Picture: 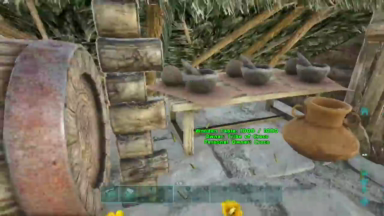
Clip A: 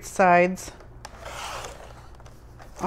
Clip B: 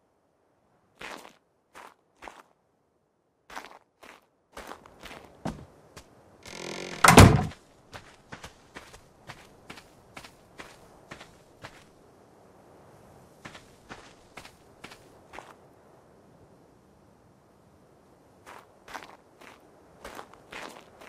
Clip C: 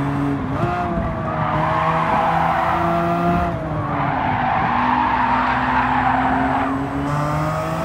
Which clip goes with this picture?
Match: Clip B